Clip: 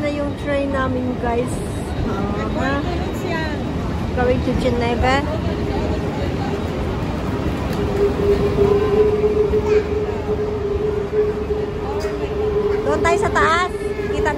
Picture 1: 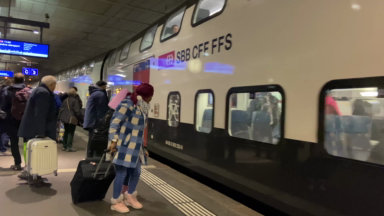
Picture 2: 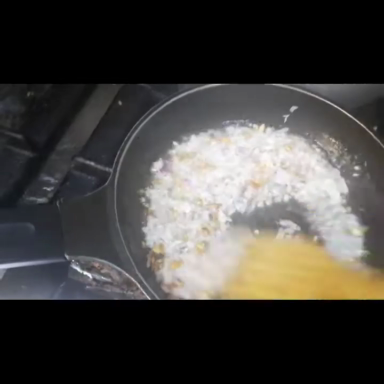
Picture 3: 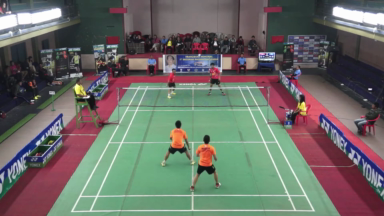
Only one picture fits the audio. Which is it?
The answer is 1